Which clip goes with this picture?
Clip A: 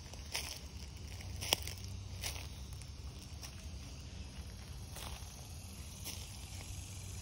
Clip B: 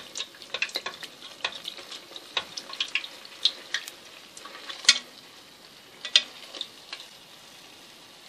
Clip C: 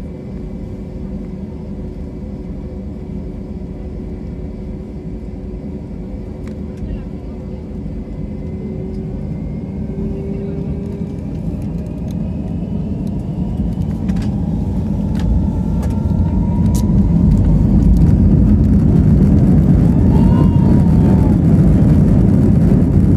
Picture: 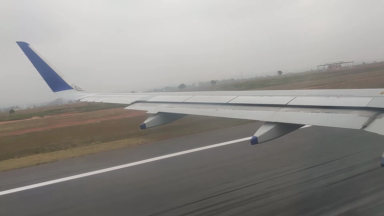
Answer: C